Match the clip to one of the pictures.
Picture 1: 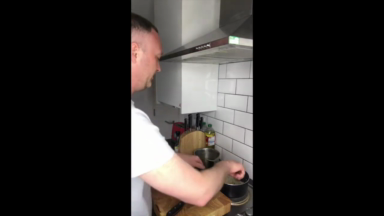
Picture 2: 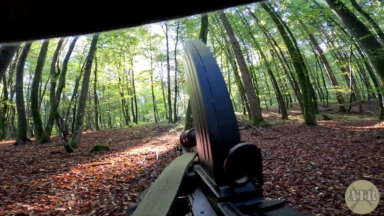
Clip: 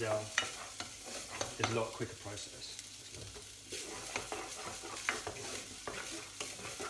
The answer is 1